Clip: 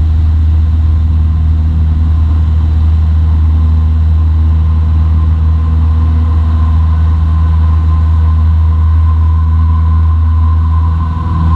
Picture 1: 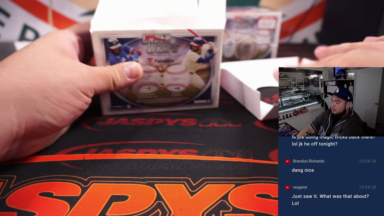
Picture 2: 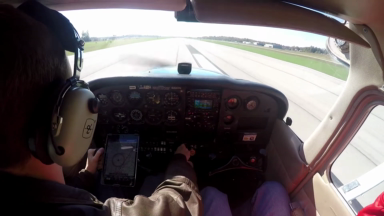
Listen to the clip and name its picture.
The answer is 2